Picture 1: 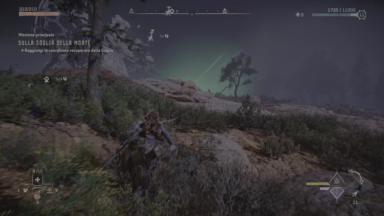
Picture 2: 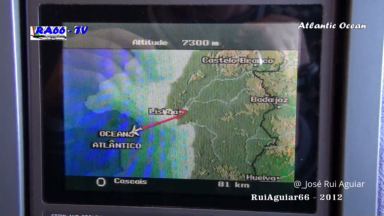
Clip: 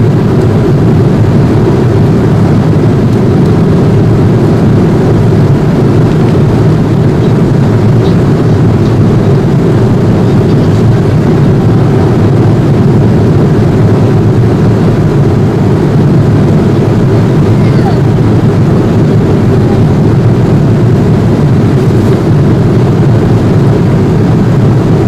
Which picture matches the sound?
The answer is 2